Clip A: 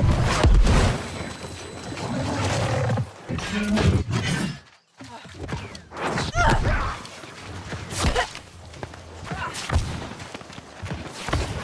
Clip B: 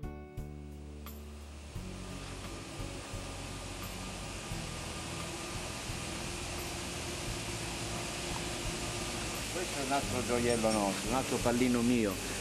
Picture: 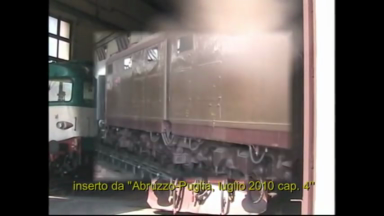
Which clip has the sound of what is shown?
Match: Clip B